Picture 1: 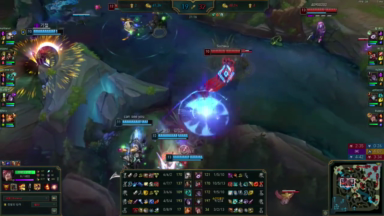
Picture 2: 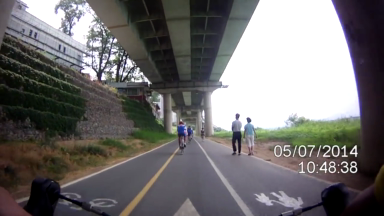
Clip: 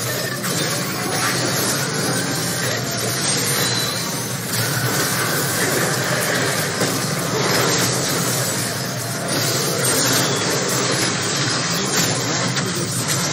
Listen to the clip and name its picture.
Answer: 1